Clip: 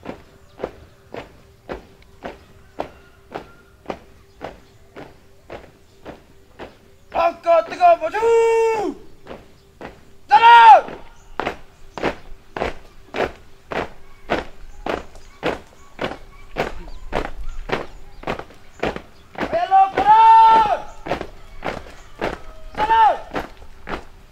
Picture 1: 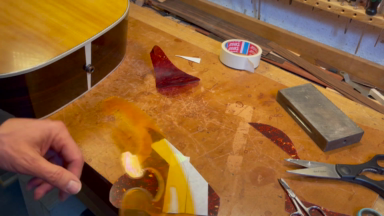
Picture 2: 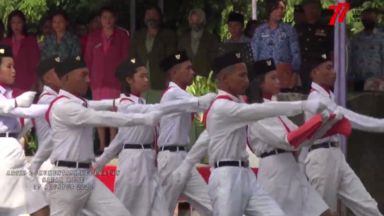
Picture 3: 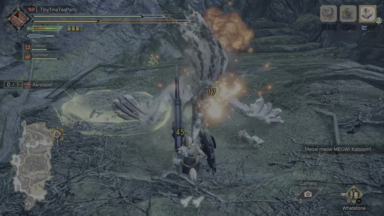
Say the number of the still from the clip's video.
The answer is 2